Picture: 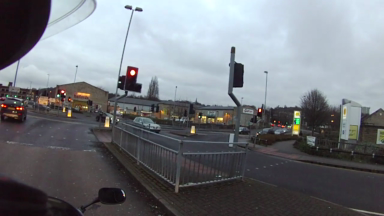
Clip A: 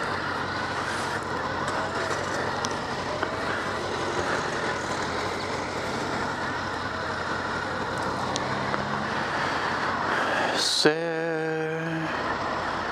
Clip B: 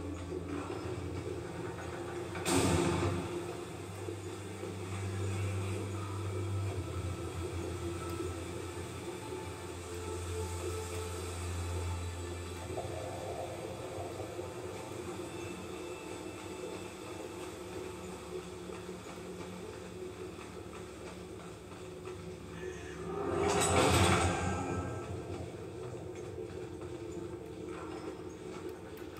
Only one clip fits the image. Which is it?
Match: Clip A